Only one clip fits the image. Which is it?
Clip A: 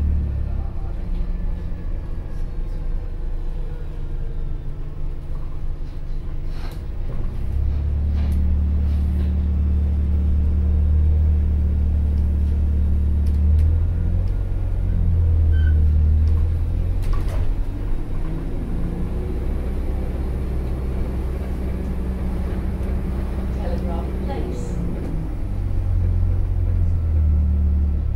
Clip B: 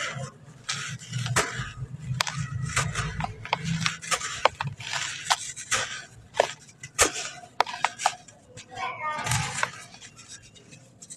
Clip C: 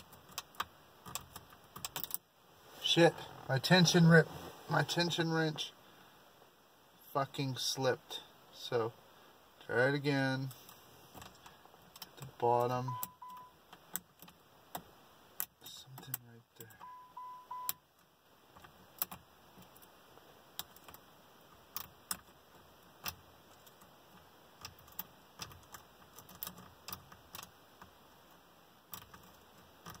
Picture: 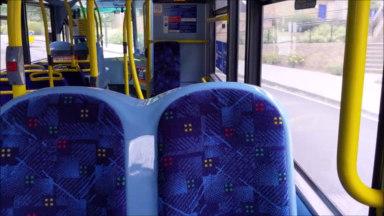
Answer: A